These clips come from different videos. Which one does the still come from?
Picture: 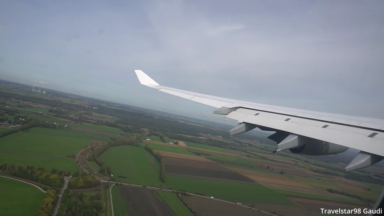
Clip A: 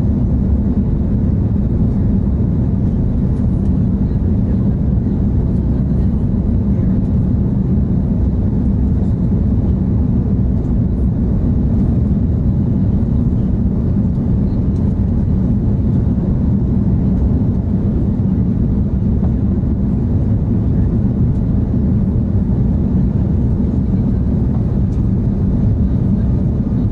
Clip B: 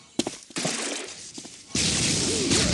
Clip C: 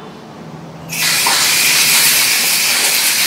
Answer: A